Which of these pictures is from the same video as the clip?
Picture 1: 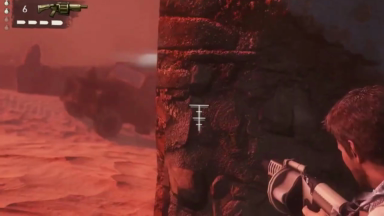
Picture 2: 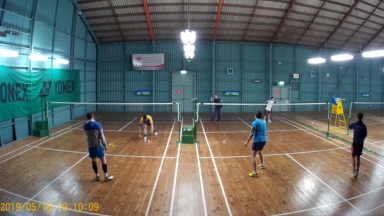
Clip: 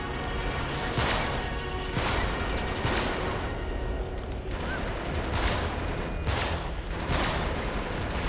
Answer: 1